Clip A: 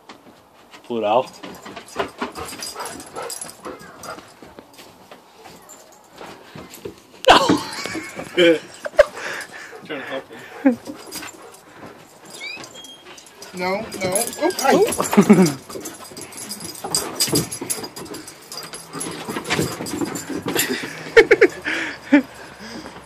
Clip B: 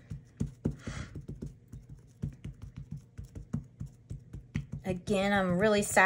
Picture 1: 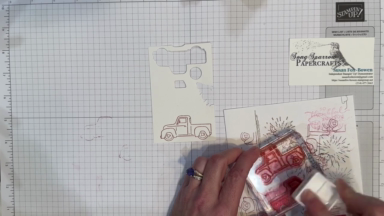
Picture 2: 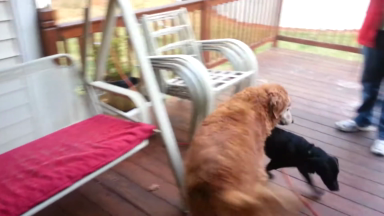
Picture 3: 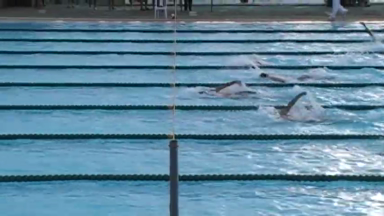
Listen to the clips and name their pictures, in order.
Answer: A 2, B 1